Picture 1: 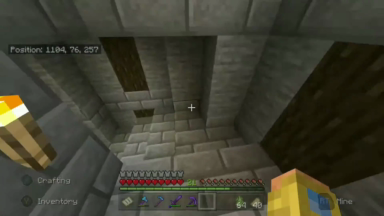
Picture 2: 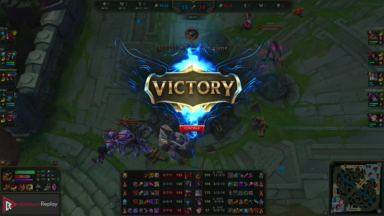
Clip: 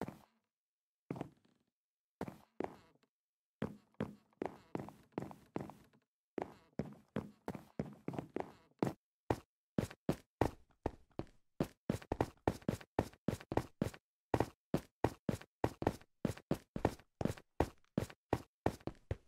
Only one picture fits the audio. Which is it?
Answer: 1